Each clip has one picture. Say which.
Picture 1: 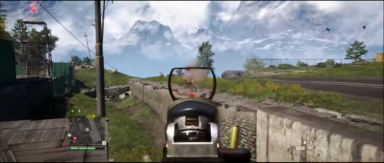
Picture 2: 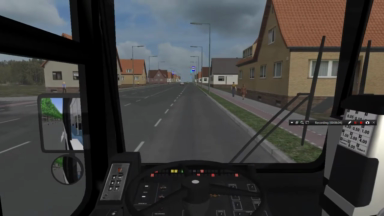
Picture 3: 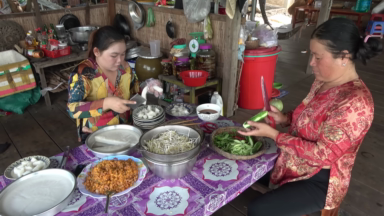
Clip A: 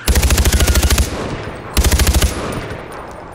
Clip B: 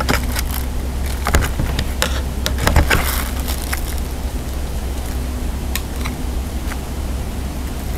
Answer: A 1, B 3